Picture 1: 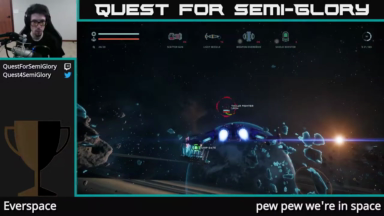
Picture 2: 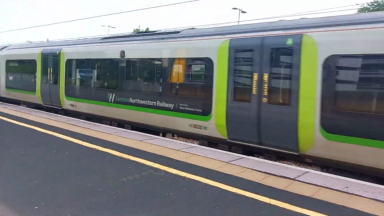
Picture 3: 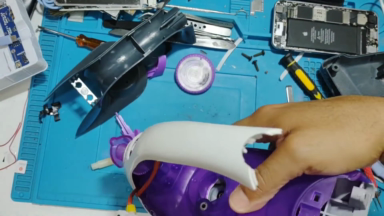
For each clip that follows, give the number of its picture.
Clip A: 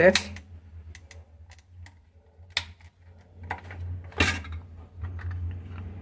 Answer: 3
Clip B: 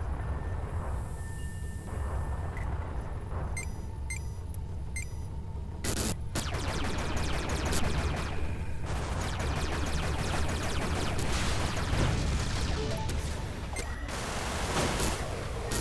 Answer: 1